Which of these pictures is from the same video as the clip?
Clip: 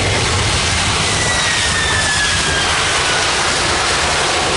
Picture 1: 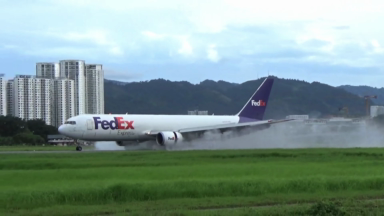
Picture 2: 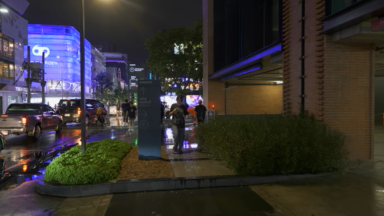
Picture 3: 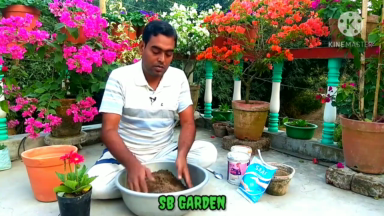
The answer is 1